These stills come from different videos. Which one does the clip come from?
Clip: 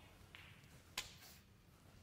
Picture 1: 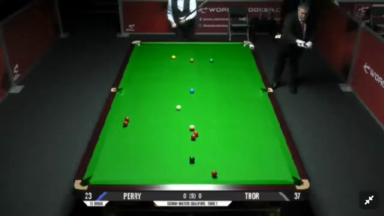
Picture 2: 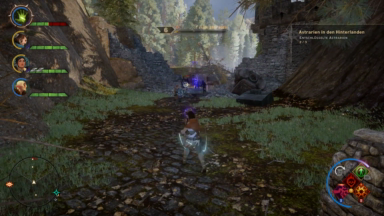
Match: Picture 1